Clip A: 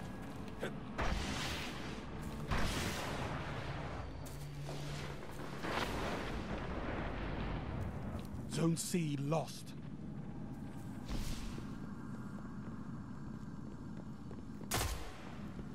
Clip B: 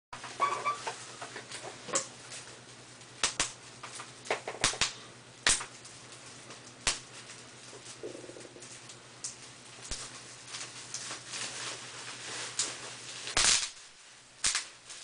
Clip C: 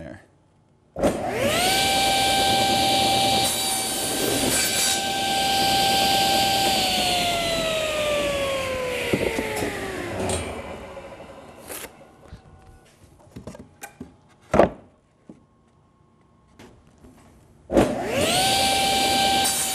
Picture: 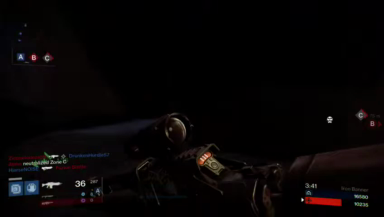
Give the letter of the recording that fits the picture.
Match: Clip A